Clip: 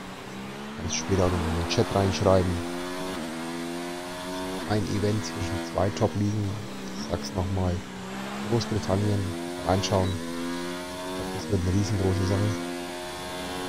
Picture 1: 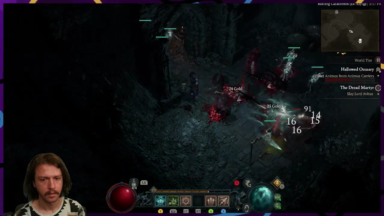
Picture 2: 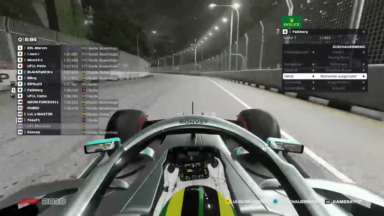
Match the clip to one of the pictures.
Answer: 2